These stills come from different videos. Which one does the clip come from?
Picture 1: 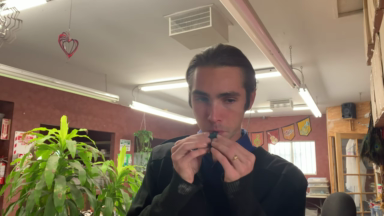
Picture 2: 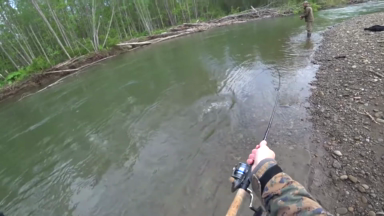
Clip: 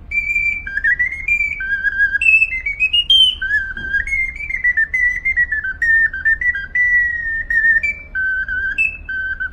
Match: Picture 1